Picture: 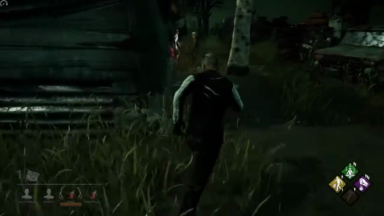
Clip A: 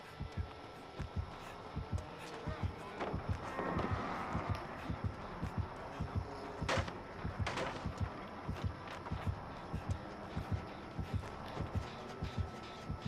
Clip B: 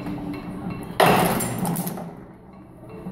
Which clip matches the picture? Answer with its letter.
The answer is A